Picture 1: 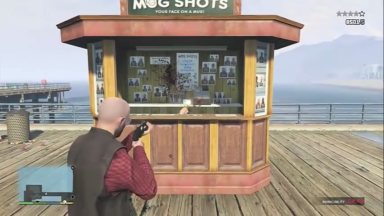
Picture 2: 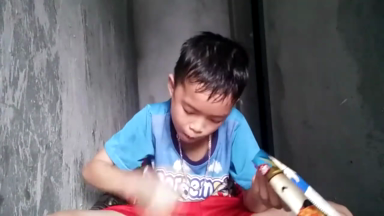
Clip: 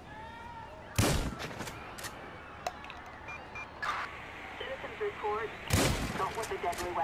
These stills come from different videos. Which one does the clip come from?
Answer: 1